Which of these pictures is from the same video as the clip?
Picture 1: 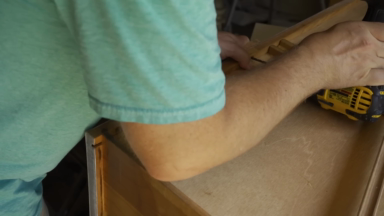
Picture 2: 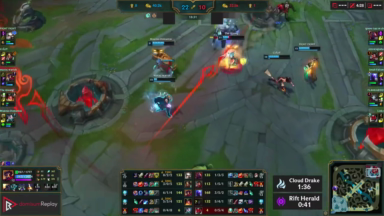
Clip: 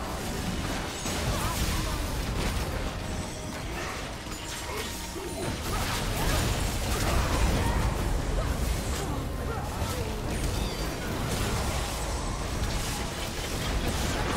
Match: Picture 2